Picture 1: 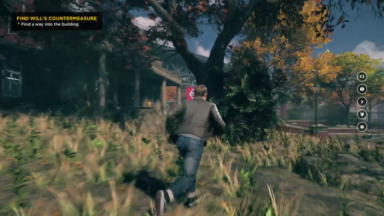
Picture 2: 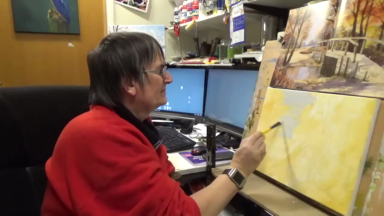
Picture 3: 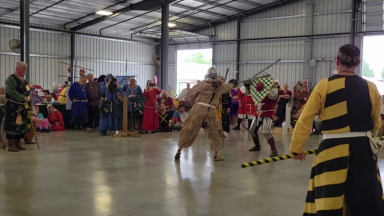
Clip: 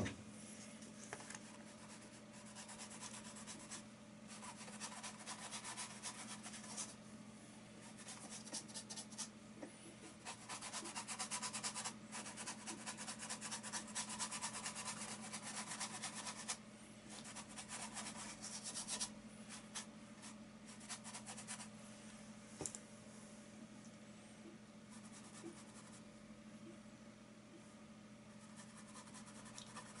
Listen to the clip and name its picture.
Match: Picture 2